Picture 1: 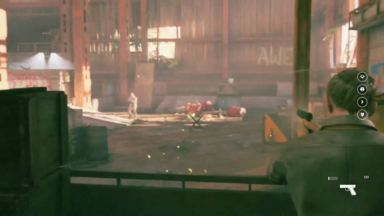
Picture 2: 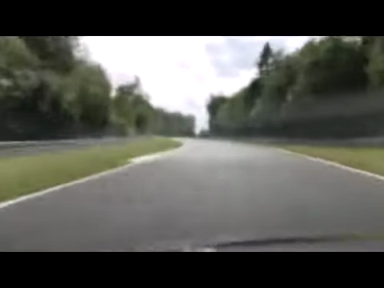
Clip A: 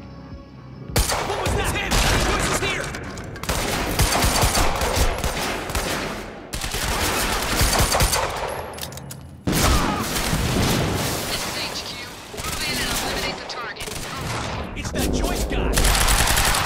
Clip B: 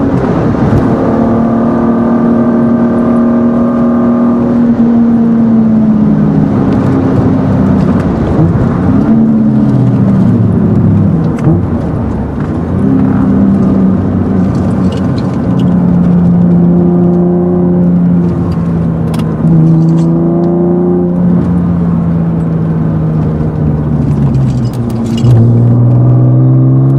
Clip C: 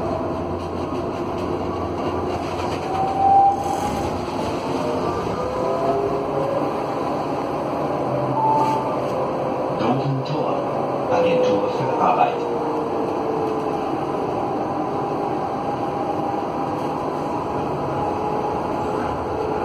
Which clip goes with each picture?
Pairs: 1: A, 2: B